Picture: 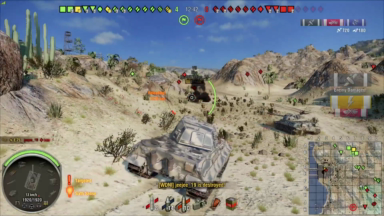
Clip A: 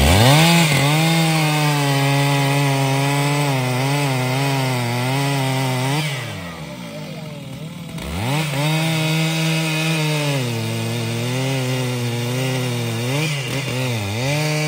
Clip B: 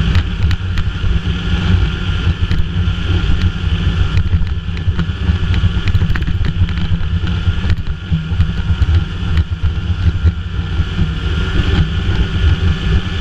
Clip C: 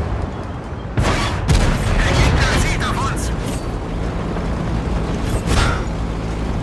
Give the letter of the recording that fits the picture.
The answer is C